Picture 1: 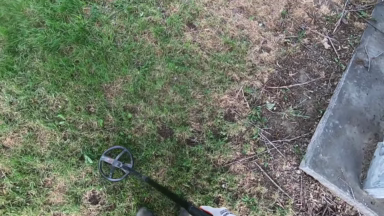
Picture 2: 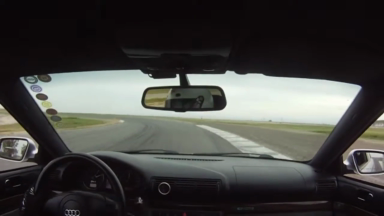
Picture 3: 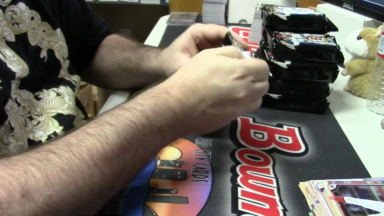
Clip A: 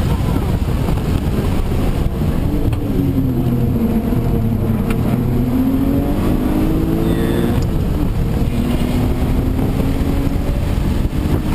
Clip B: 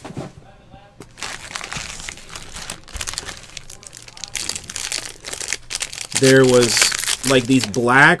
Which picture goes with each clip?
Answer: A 2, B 3